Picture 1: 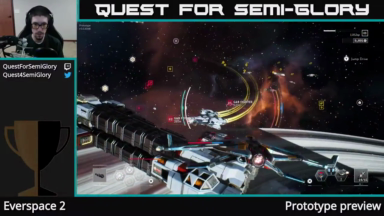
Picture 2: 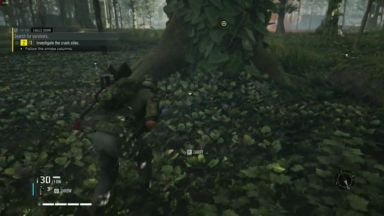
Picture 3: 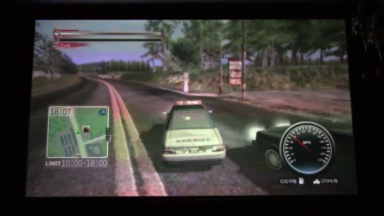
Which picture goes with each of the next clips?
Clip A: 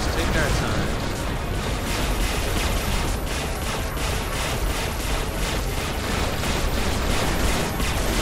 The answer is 1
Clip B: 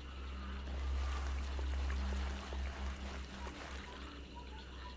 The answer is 2